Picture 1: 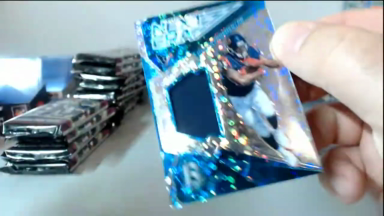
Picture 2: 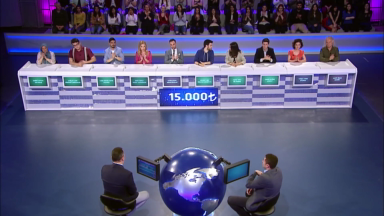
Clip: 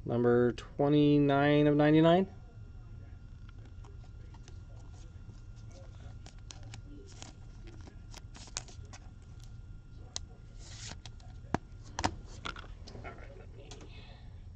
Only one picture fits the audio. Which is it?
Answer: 1